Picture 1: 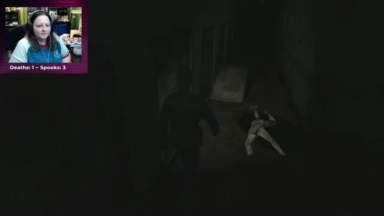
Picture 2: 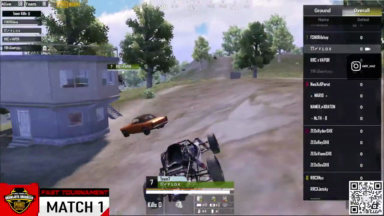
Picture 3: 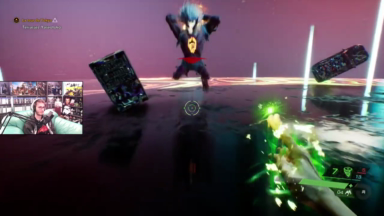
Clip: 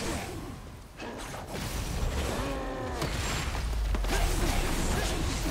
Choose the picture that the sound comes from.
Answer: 3